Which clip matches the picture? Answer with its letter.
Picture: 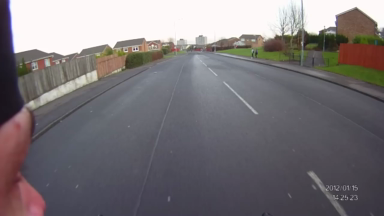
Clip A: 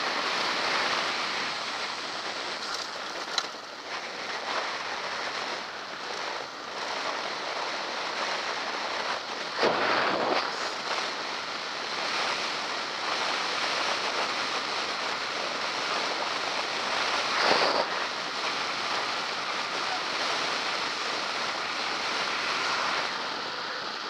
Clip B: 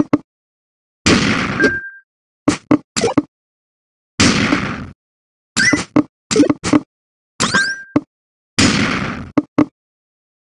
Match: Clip A